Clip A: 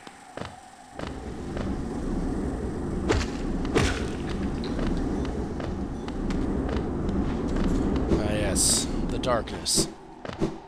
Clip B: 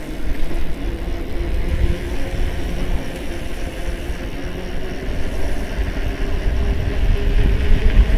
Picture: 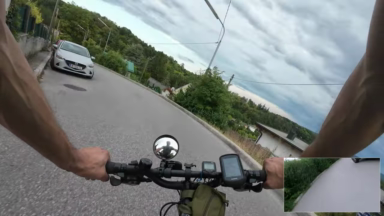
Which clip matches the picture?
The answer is B